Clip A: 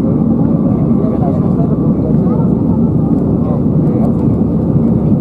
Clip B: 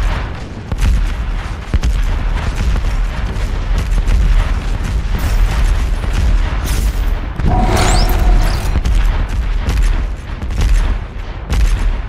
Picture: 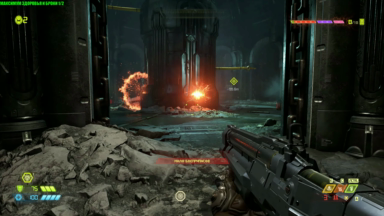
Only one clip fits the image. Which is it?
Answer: B